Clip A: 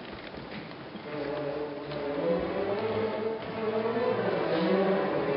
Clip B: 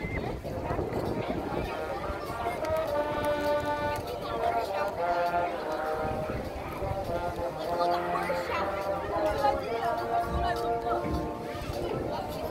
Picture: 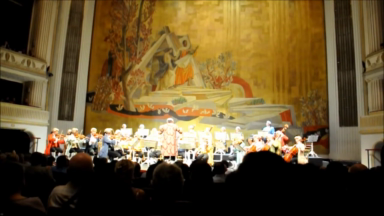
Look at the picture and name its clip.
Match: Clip A